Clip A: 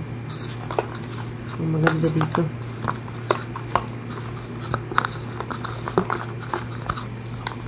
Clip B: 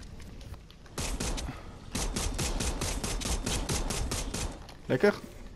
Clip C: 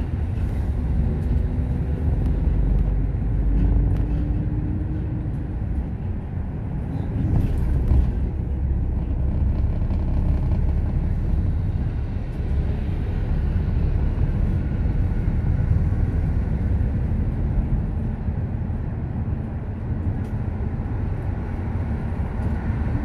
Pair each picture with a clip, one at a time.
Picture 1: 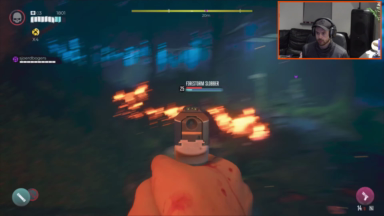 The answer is B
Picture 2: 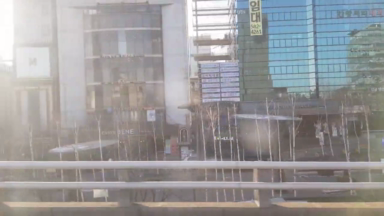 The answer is C